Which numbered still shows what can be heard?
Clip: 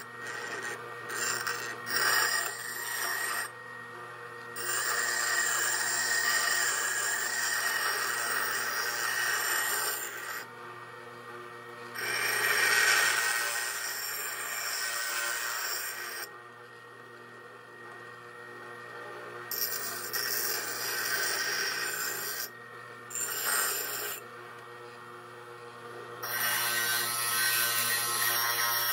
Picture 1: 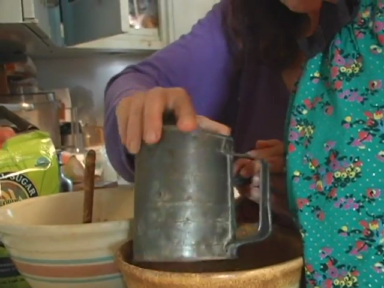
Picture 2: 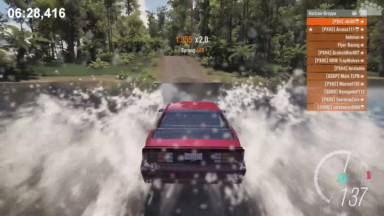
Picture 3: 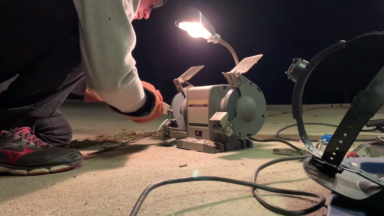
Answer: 3